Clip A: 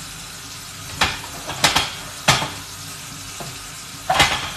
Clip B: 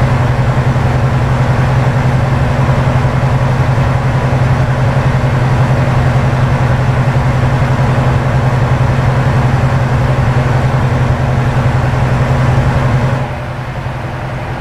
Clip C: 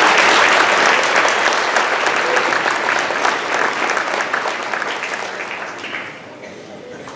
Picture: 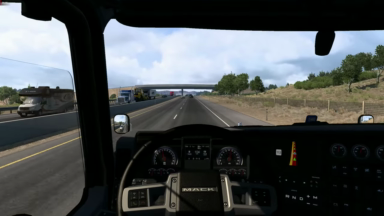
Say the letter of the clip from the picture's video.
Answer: B